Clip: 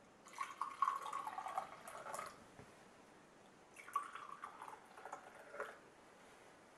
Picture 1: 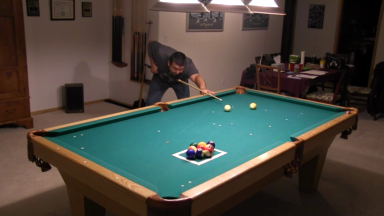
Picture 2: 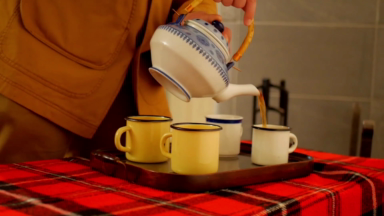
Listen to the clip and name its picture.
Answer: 2